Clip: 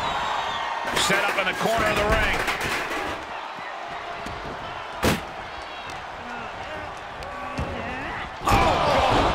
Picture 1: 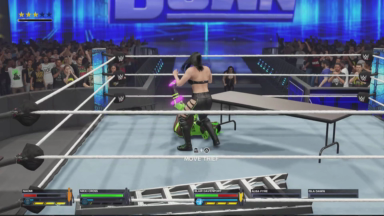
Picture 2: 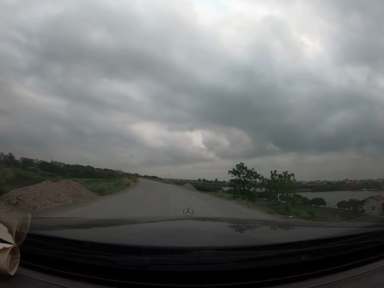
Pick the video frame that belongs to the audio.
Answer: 1